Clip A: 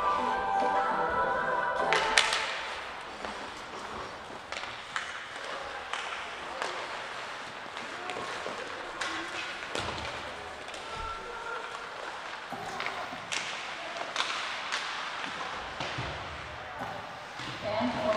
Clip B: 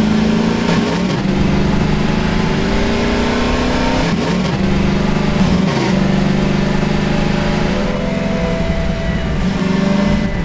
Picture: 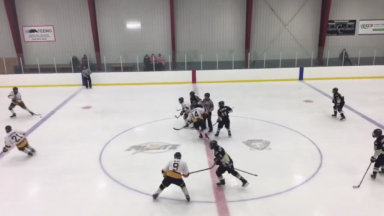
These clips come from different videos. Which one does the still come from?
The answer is A